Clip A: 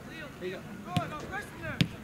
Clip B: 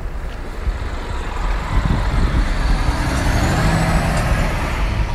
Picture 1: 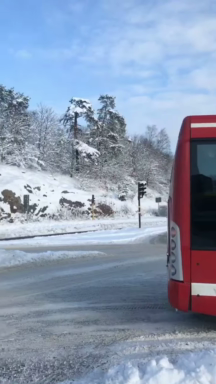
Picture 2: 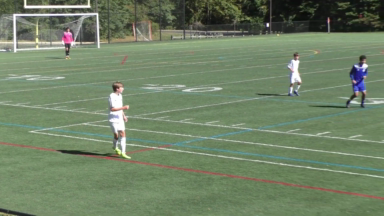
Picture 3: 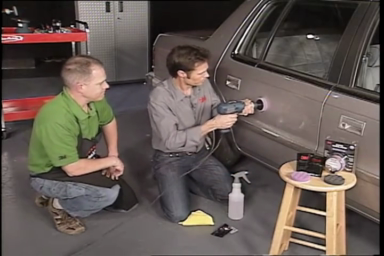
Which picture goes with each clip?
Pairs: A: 2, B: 1